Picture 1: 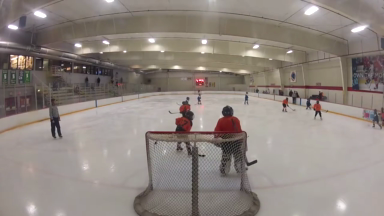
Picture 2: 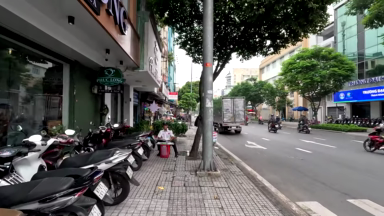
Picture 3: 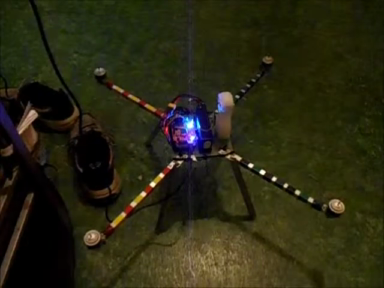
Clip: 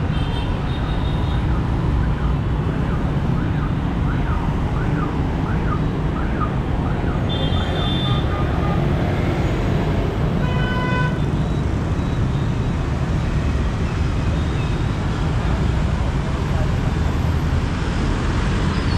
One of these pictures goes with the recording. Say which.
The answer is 2